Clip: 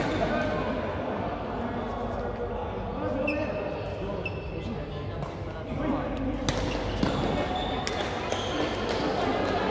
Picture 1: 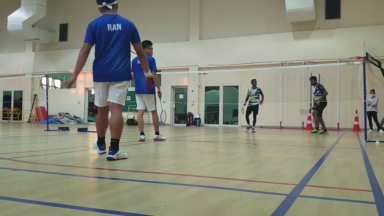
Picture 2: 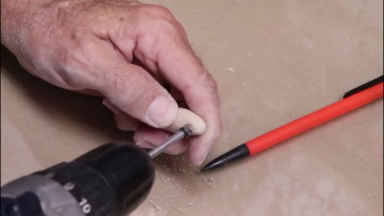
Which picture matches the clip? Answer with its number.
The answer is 1